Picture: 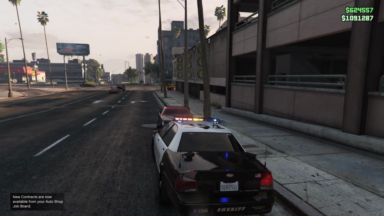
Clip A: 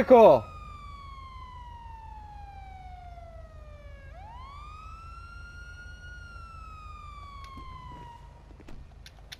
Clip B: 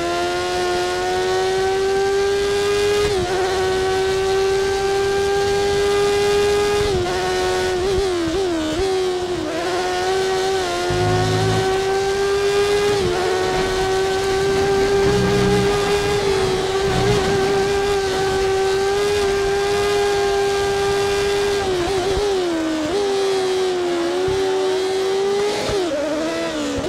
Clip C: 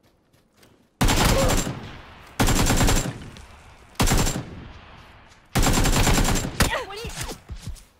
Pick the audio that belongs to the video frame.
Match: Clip A